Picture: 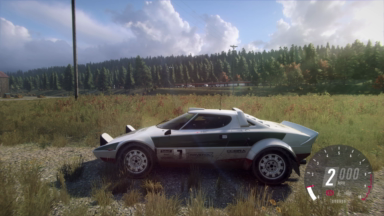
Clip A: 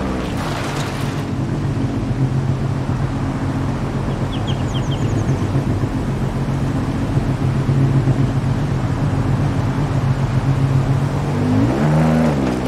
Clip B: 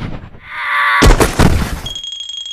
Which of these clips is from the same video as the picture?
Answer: A